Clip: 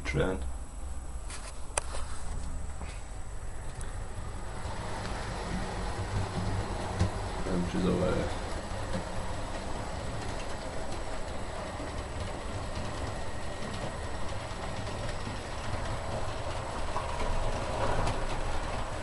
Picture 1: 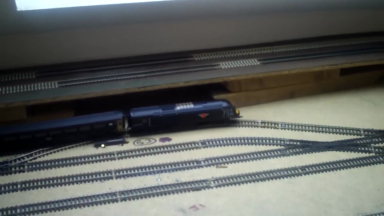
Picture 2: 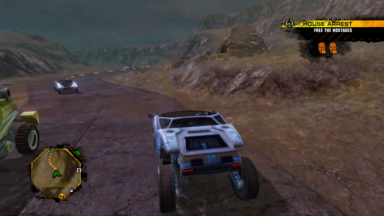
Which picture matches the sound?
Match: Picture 1